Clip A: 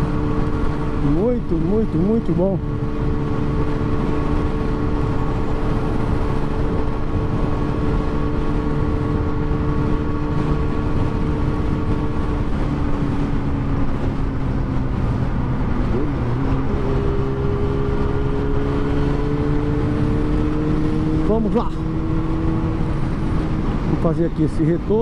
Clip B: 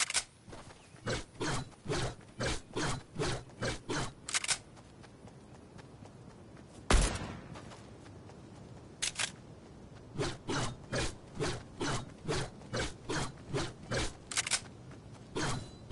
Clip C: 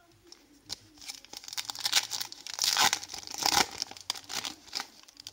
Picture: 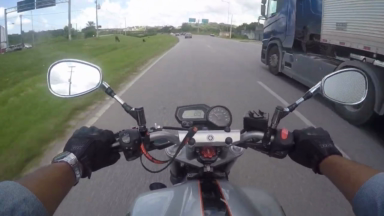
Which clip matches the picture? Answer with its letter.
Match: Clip A